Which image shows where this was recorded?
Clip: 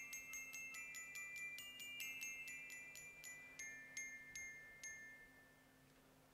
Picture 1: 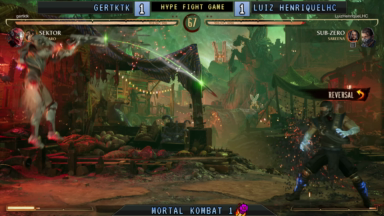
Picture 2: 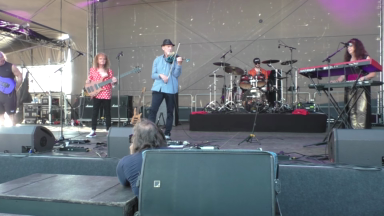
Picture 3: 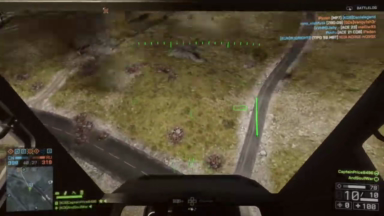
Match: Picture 2